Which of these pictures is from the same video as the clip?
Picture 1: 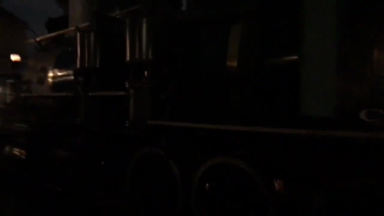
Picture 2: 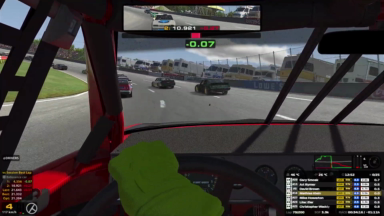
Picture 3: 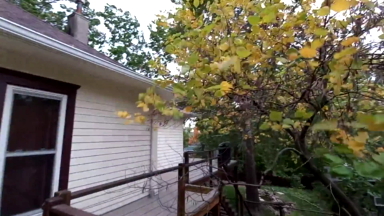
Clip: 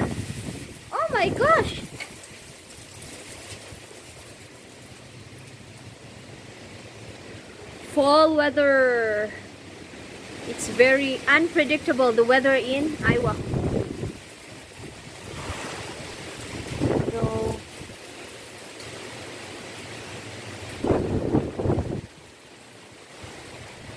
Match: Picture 3